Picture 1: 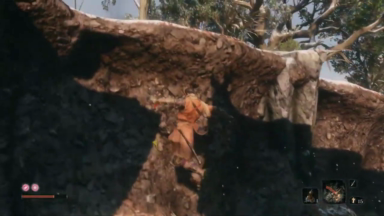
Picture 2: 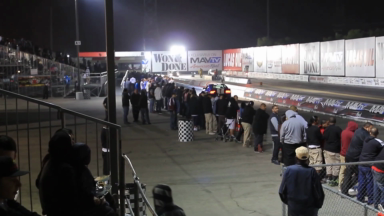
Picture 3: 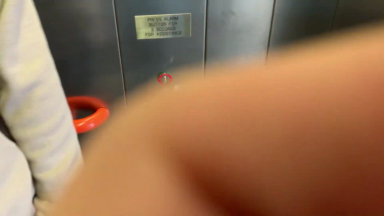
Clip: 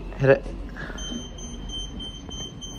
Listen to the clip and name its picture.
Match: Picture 3